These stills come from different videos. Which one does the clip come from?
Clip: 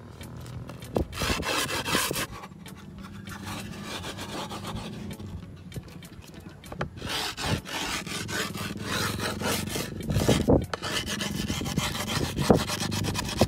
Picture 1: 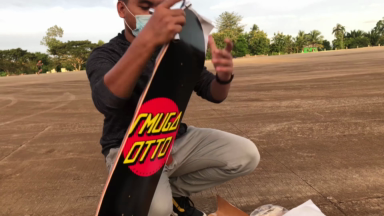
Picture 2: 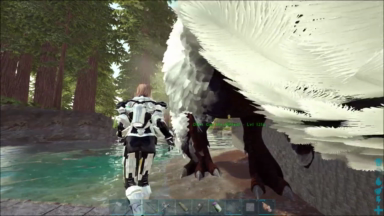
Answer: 1